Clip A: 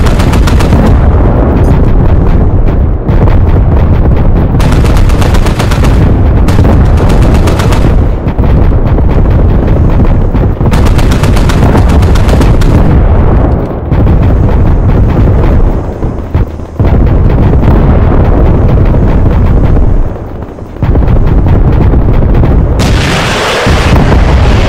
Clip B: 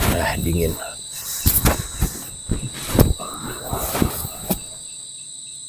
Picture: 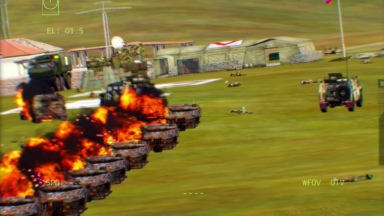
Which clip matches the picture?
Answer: A